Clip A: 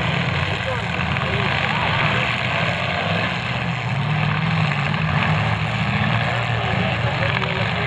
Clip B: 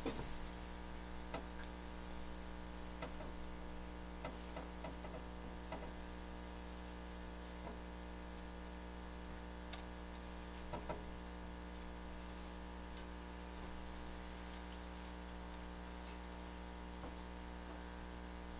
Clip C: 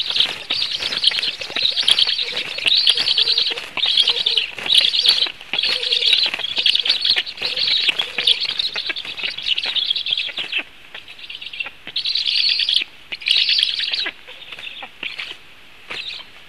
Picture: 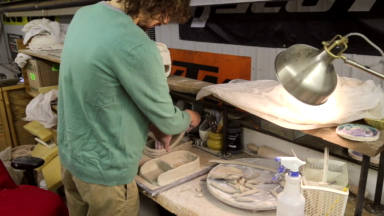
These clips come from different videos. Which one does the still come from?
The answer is B